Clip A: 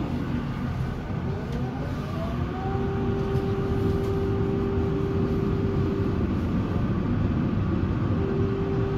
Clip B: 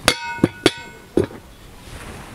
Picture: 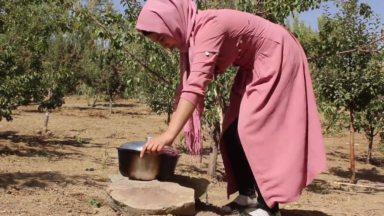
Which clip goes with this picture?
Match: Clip B